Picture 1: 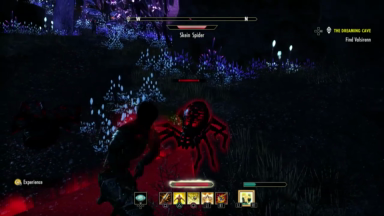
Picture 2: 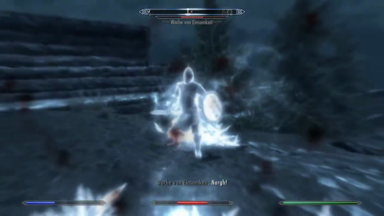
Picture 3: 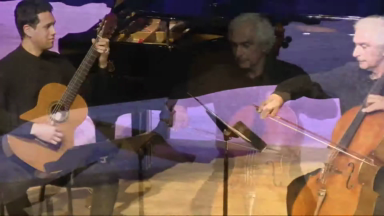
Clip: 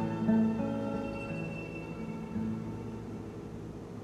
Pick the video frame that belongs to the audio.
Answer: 3